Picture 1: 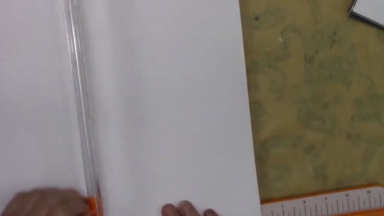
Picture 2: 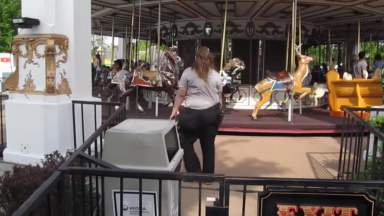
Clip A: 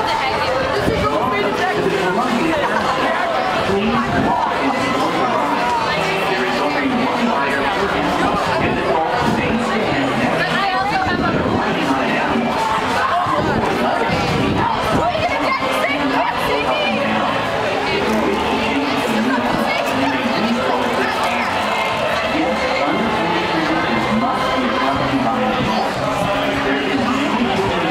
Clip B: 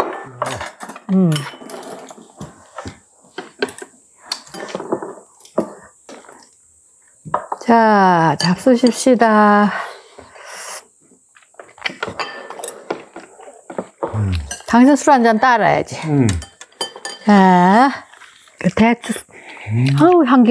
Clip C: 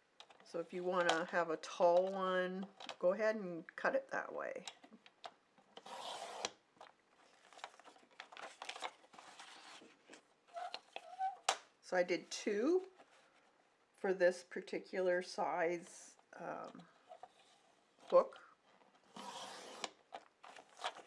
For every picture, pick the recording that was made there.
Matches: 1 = C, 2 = A